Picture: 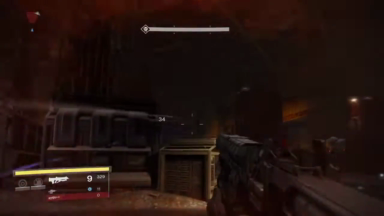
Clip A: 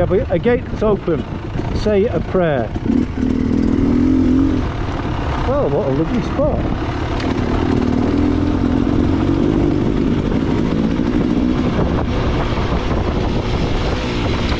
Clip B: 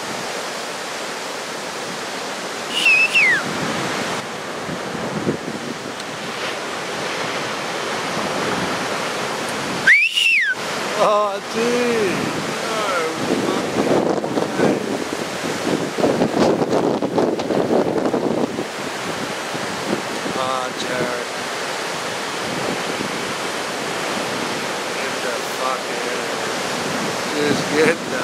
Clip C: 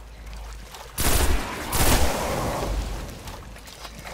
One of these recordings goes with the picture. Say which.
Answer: C